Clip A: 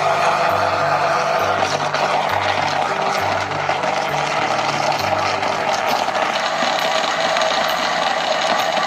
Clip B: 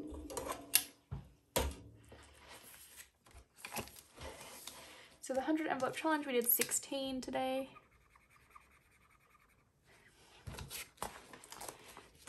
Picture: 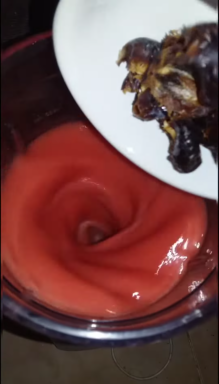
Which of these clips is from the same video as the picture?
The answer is A